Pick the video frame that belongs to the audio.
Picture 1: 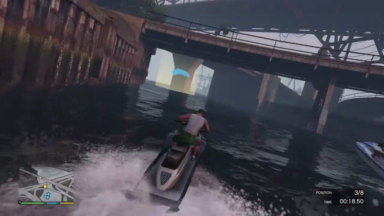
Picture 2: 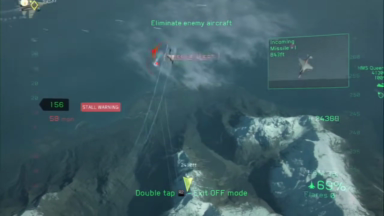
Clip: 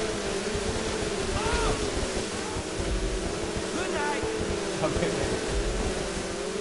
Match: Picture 1